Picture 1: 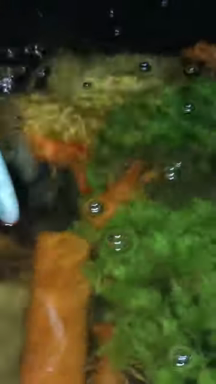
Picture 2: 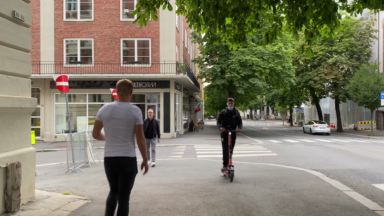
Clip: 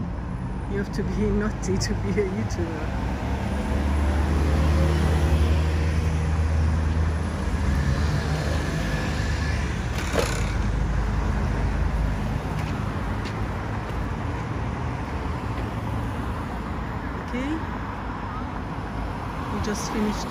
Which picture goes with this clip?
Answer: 2